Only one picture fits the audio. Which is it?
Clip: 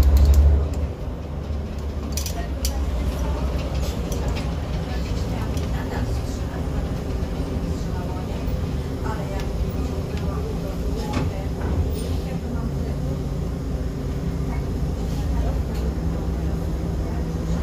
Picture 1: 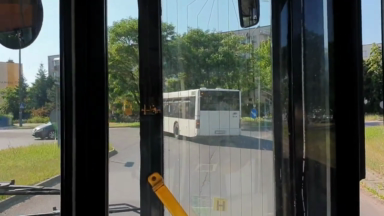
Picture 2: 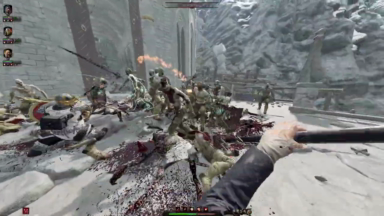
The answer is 1